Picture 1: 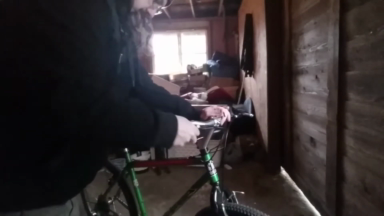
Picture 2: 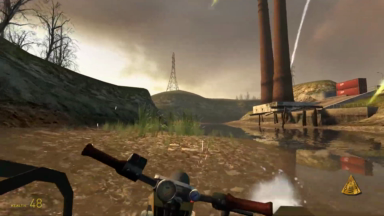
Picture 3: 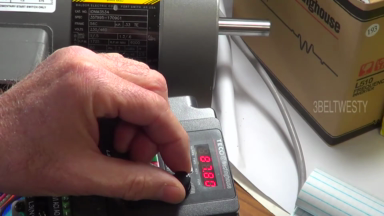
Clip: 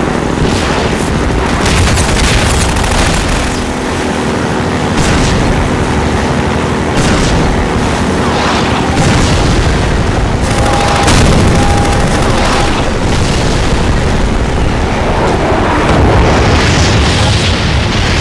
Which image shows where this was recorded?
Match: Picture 2